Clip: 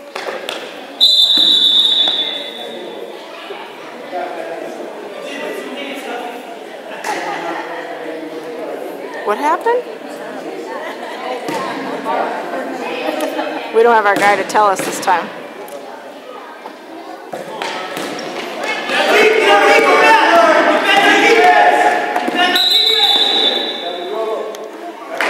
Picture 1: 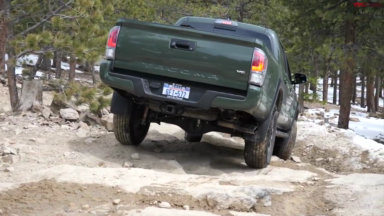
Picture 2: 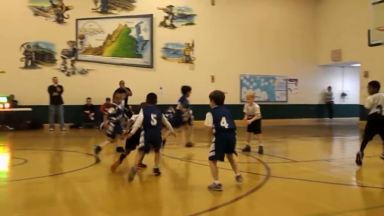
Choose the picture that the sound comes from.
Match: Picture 2